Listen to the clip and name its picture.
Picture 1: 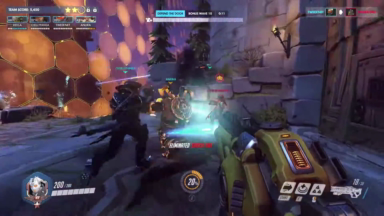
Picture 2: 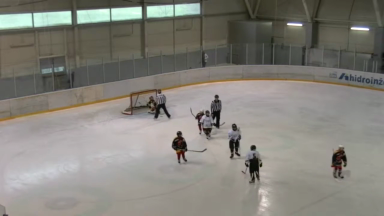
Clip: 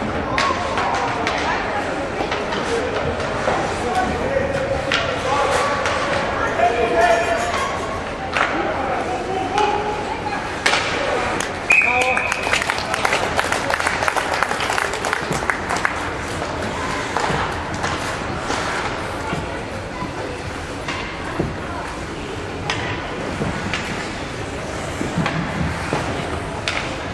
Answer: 2